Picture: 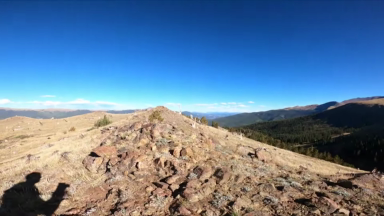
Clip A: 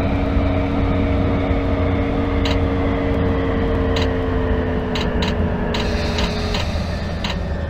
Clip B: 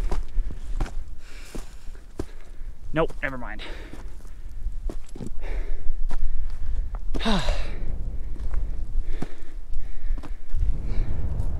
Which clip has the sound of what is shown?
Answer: B